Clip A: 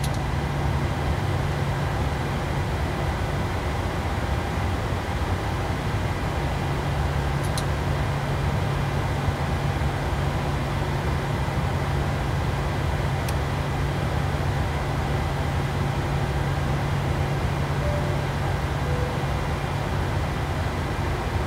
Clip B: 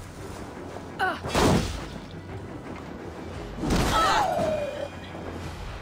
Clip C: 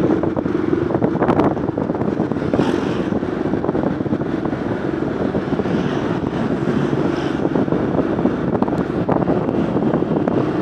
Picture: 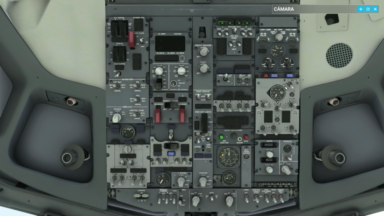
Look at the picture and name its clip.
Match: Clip A